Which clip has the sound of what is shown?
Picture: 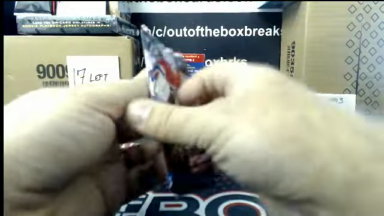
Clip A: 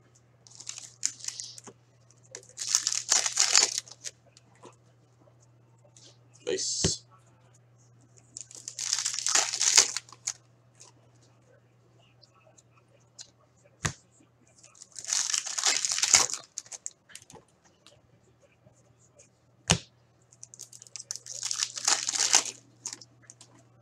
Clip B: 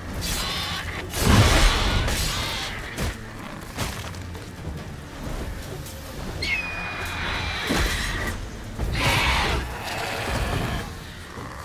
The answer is A